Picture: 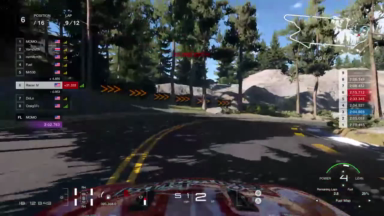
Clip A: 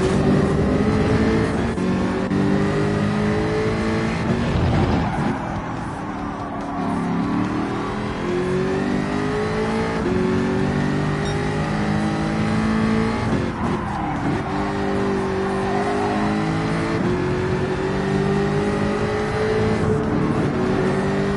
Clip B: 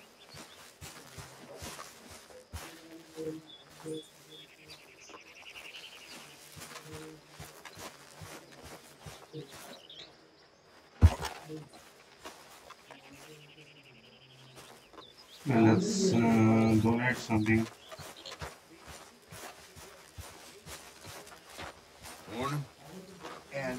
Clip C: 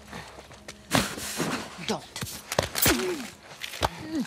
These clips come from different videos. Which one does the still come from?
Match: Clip A